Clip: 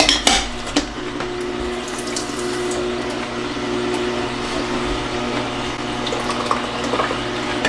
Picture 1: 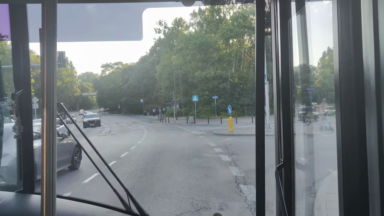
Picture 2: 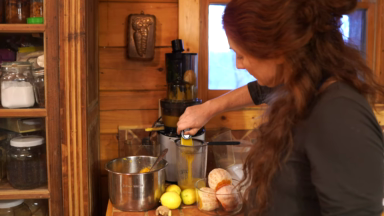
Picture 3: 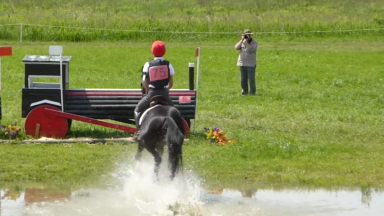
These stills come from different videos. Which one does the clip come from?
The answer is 2